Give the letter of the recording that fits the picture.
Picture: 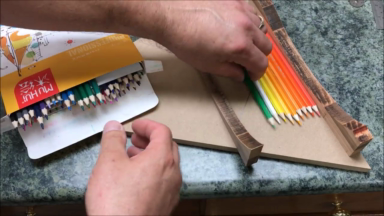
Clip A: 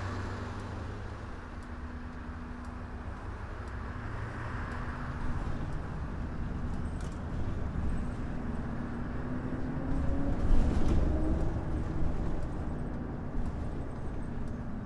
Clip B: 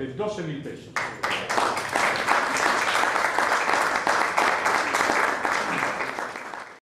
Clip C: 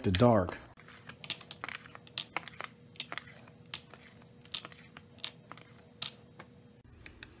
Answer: C